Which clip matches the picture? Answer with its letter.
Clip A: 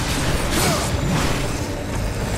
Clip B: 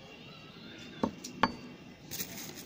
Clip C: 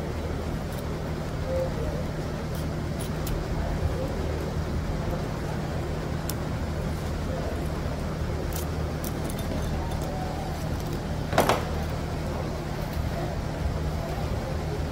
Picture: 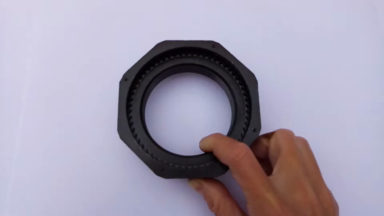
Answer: B